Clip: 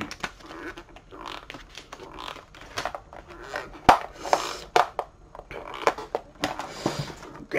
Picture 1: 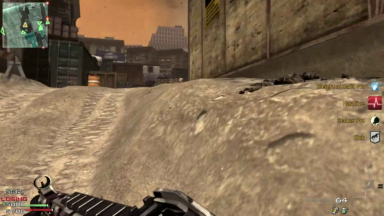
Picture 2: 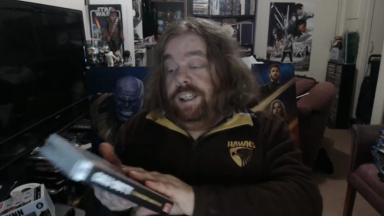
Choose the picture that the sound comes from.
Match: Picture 2